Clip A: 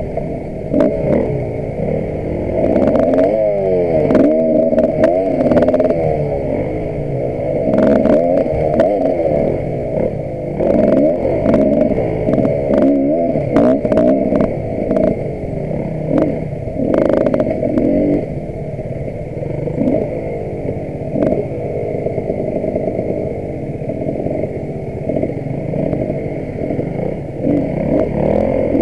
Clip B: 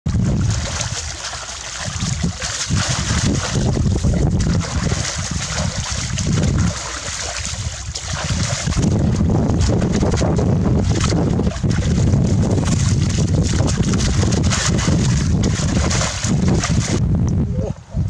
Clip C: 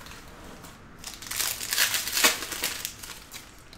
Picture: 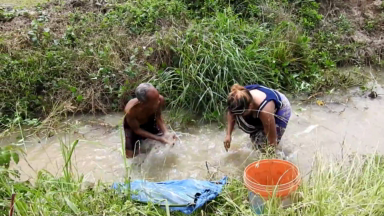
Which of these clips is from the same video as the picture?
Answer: B